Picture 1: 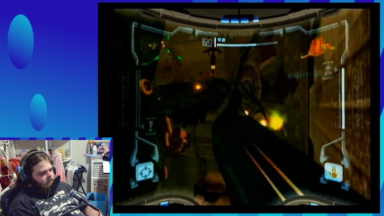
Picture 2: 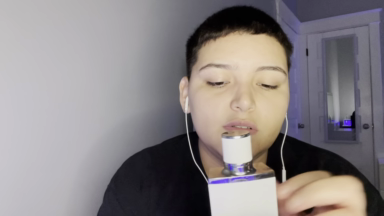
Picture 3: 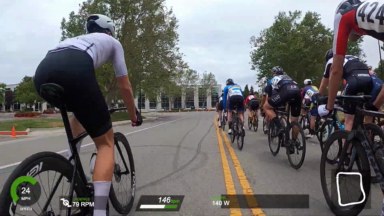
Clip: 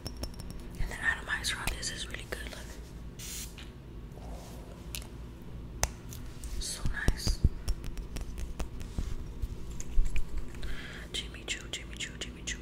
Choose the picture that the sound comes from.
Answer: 2